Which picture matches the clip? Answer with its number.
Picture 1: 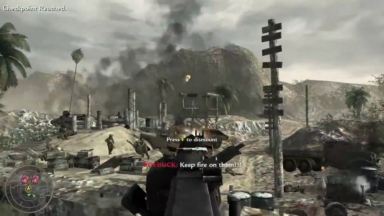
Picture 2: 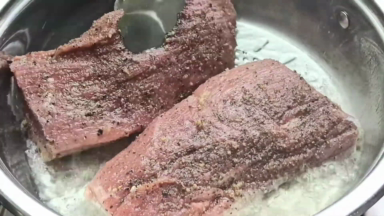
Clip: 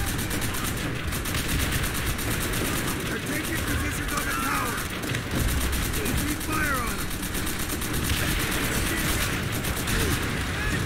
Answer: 1